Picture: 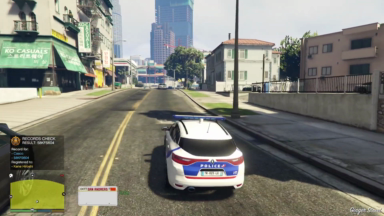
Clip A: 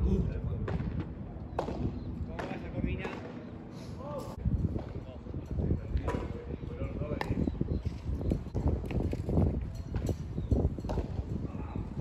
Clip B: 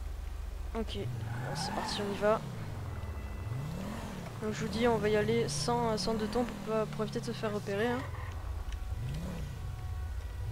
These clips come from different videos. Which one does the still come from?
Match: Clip B